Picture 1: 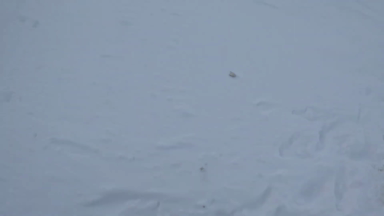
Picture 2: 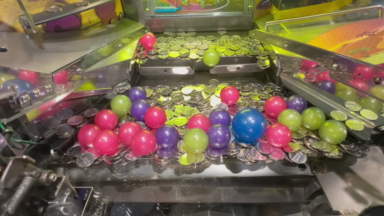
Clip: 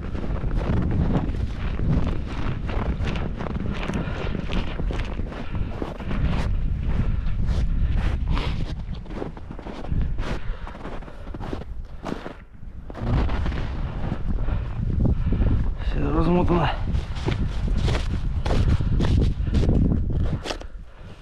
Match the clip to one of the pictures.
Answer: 1